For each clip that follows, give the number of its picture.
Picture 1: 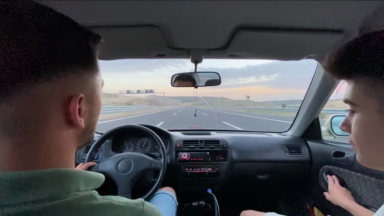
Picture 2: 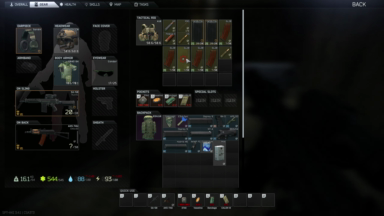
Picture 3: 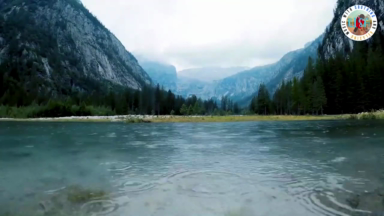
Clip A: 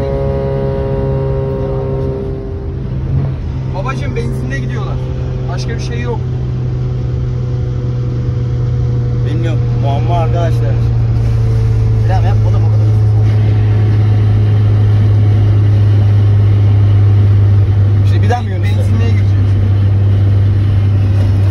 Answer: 1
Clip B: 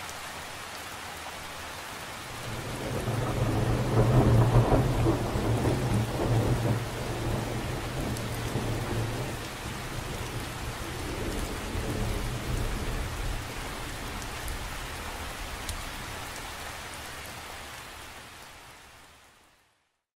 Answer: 3